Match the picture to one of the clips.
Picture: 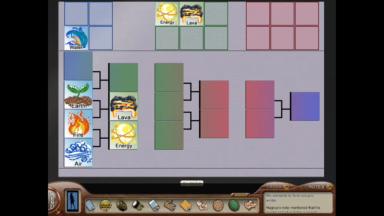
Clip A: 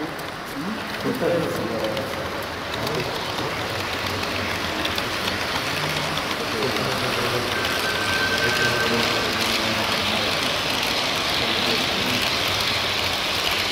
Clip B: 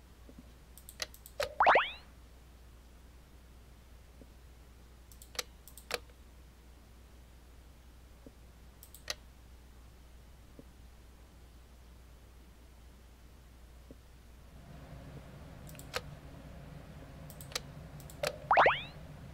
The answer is B